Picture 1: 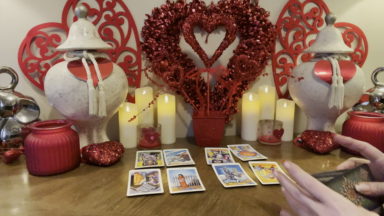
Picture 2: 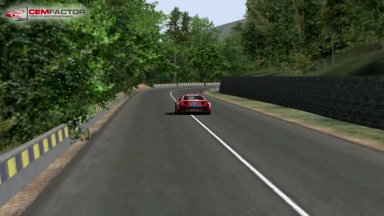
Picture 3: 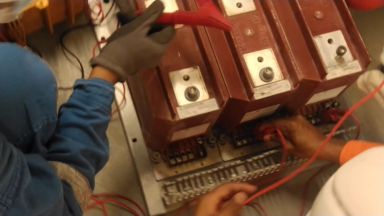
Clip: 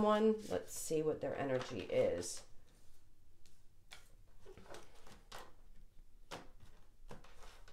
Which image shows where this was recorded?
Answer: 1